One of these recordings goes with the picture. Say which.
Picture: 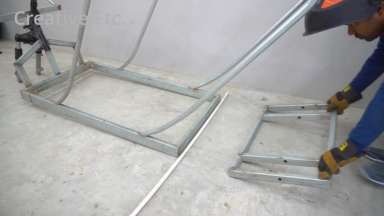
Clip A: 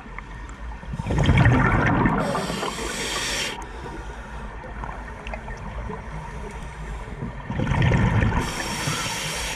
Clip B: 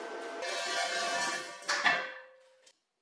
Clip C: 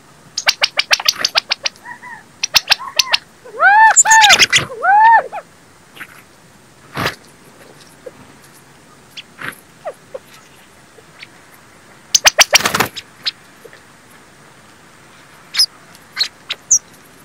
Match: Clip B